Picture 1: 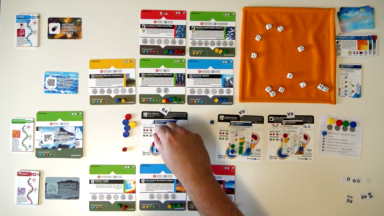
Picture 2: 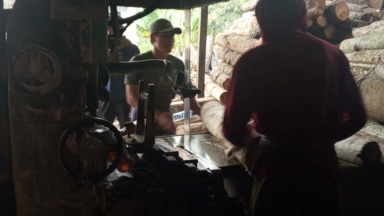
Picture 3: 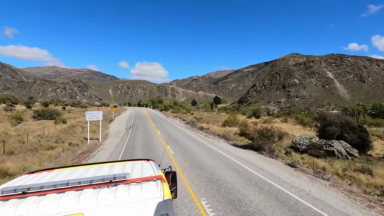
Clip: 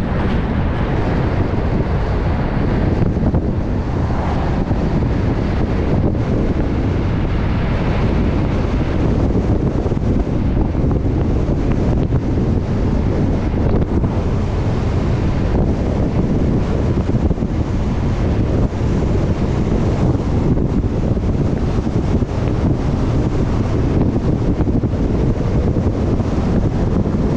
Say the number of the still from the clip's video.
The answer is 3